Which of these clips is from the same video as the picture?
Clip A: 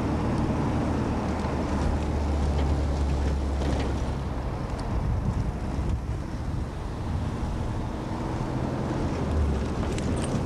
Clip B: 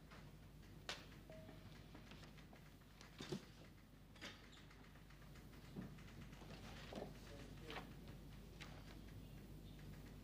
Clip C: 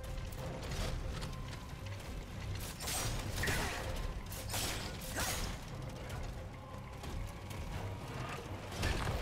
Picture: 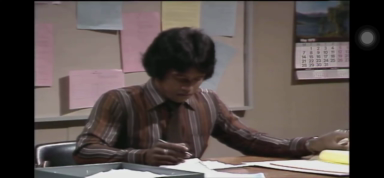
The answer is B